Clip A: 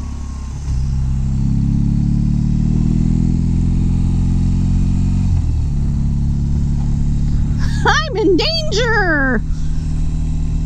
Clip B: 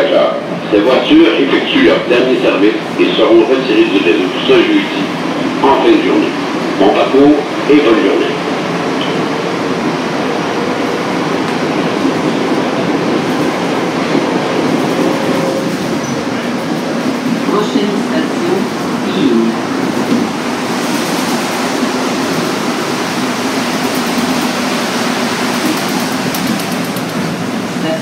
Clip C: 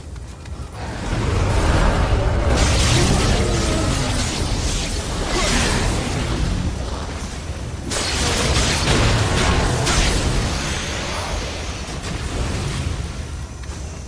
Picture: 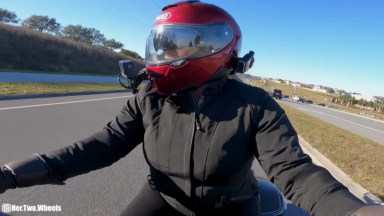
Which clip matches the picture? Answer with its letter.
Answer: A